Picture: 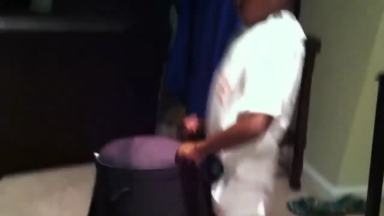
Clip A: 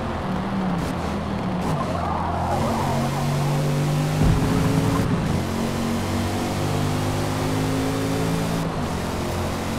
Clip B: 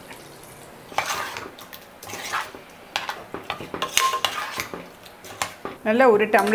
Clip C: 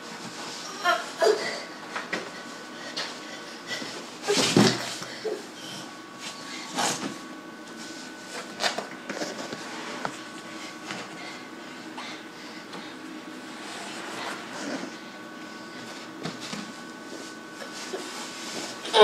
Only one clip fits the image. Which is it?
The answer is C